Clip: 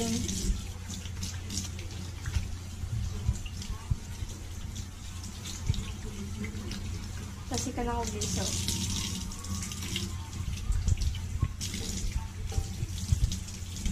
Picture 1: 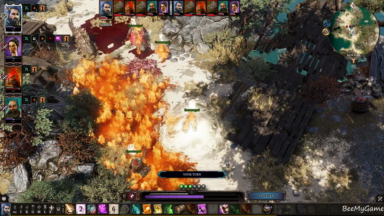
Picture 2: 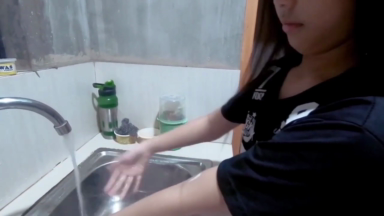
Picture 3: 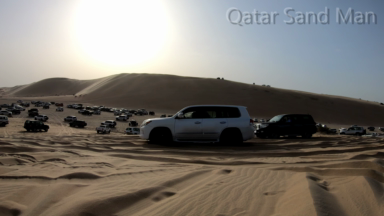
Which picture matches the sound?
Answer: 2